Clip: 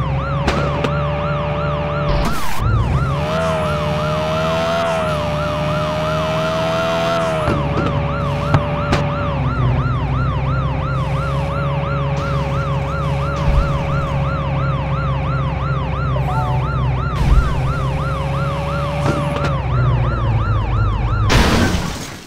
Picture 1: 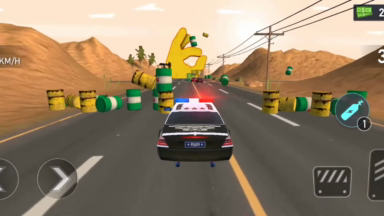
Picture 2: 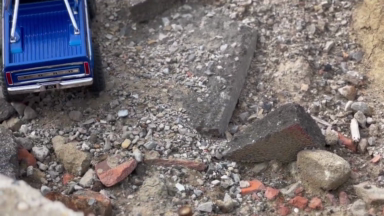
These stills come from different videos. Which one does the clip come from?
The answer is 1